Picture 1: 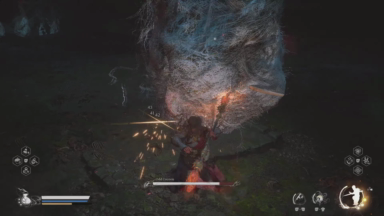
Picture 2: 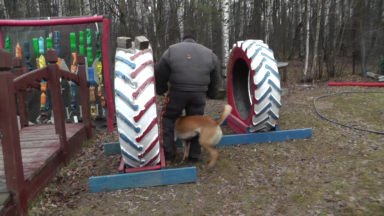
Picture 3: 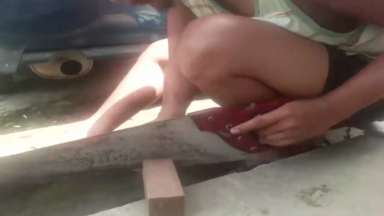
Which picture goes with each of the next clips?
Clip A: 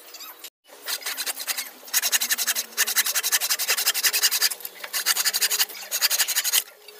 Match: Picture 3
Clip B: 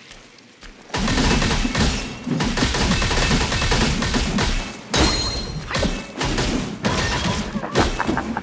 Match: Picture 1